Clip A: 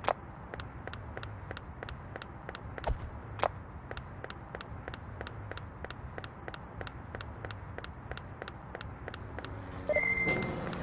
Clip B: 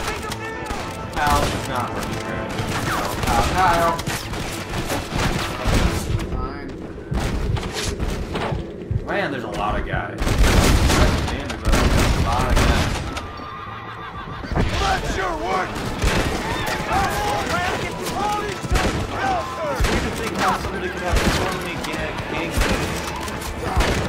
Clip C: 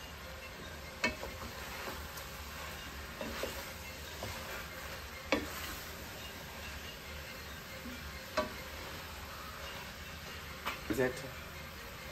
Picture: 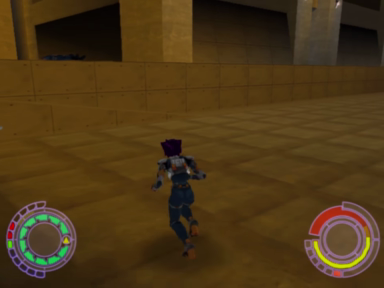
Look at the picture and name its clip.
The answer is A